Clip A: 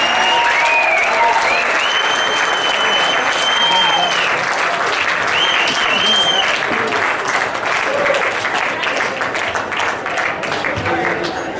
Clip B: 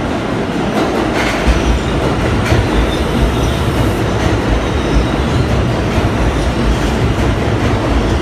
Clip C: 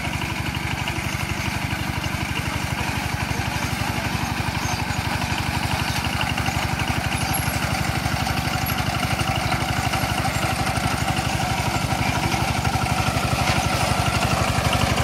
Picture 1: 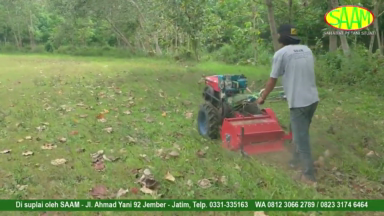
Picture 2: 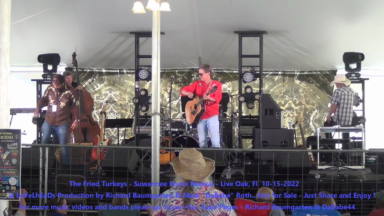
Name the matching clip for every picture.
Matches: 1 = C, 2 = A